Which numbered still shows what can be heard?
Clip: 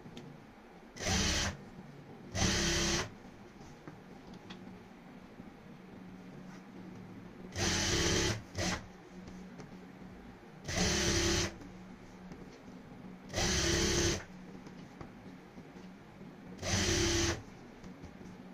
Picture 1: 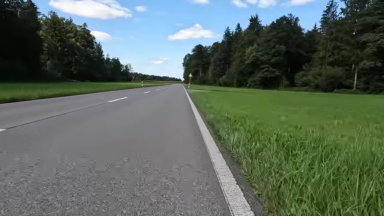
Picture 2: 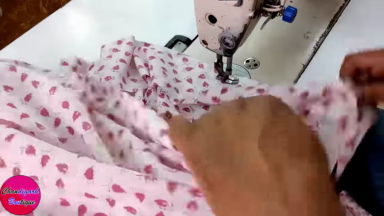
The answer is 2